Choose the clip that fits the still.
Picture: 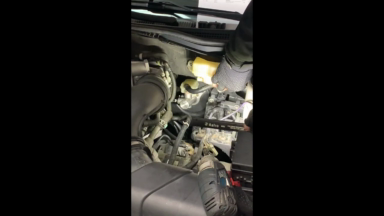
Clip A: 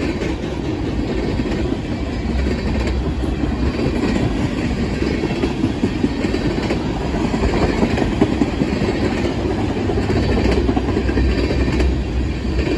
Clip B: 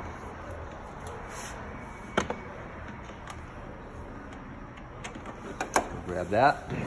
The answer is B